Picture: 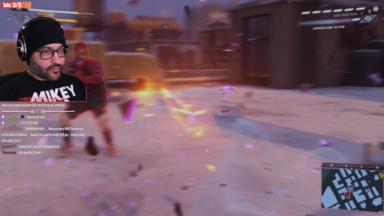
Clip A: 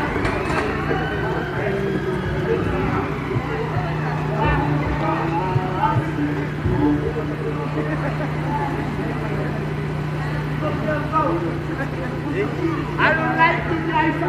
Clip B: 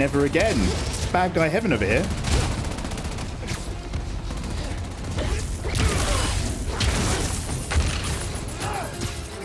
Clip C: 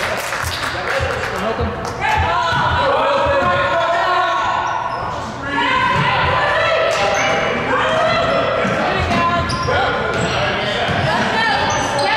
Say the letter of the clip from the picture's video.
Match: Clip B